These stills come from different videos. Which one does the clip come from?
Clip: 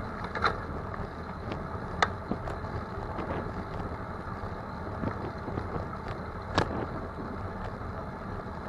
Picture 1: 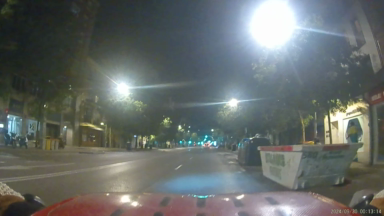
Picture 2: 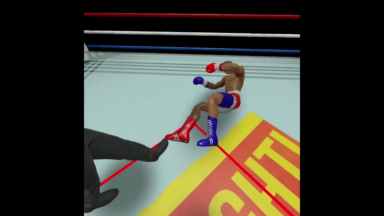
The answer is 1